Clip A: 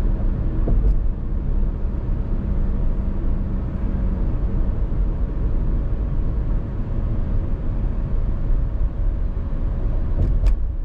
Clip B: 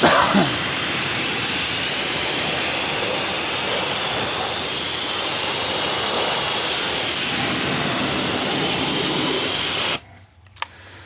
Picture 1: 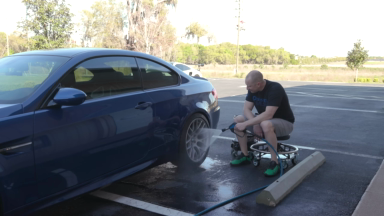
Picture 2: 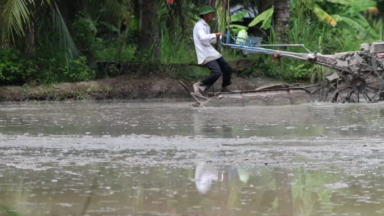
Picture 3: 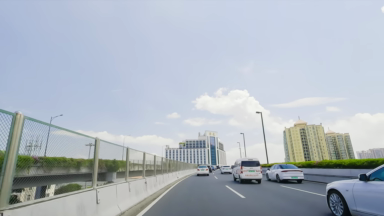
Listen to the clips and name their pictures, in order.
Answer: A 3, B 1